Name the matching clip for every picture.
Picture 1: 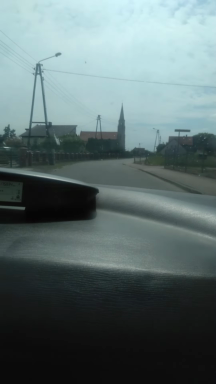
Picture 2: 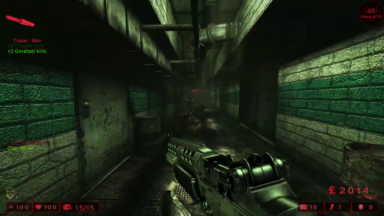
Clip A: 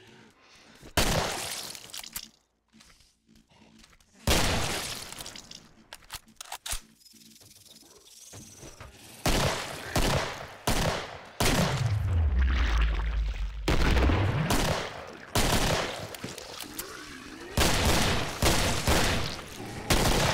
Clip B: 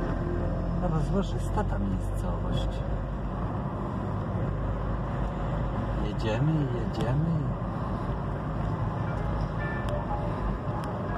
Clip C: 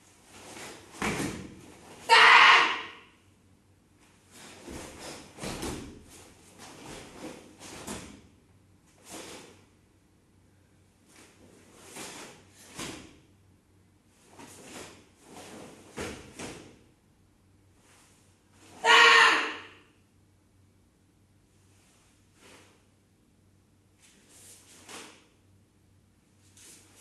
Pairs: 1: B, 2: A